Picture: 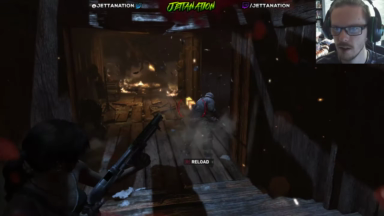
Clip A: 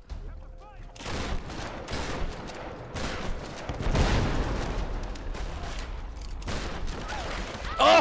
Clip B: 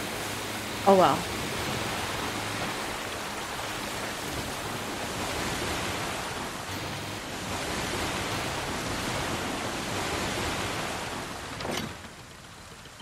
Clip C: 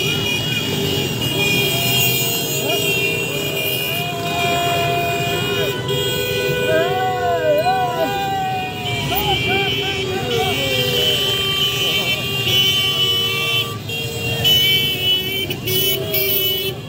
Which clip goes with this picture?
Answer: A